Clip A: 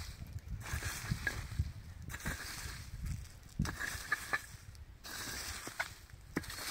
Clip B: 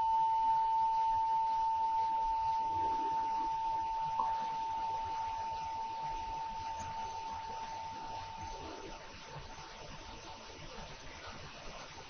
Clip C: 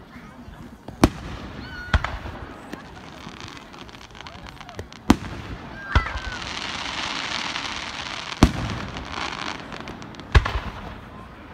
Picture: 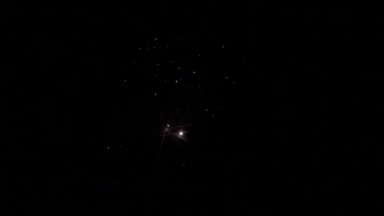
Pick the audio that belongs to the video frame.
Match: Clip C